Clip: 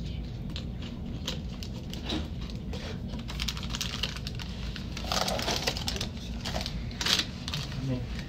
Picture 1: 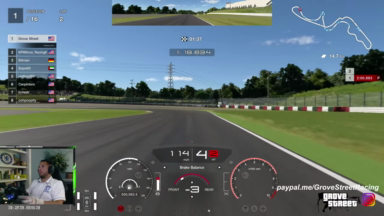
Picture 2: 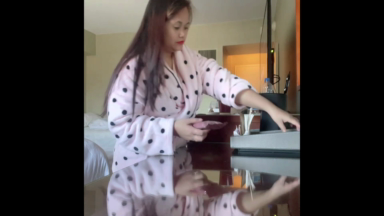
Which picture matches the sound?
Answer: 2